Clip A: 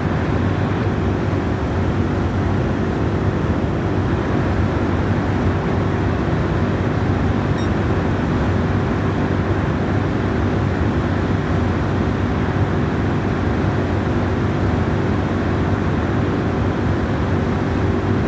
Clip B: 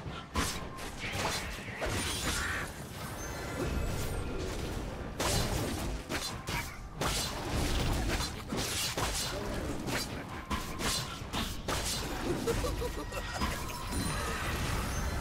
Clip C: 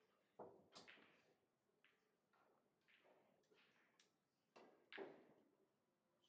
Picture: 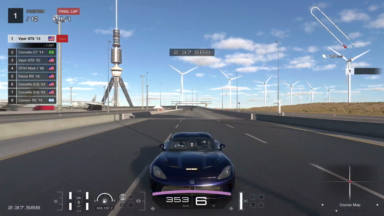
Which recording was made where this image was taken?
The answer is A